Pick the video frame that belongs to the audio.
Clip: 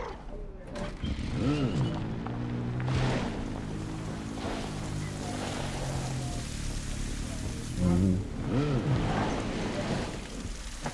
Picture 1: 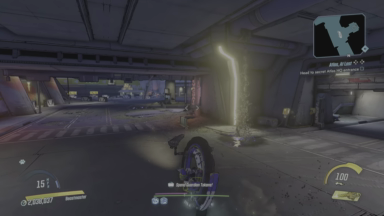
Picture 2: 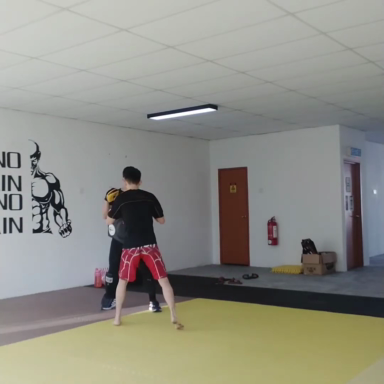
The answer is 1